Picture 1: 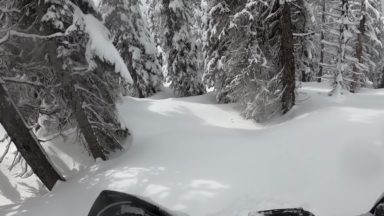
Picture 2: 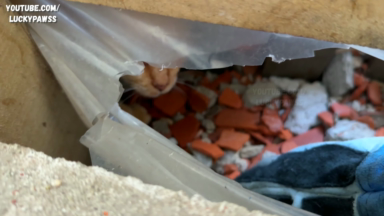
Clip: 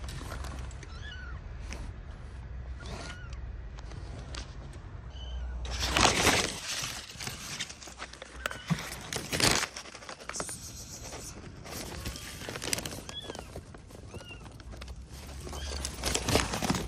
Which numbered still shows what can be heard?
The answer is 2